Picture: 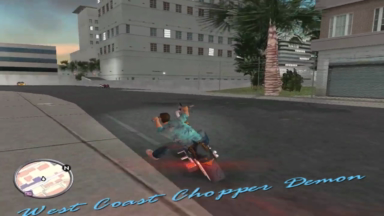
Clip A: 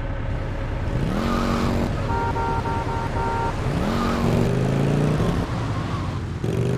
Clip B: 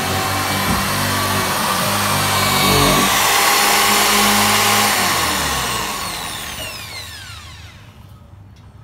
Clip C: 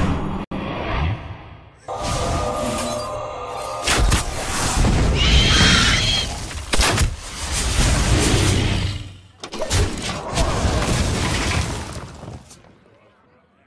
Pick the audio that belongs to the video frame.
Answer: A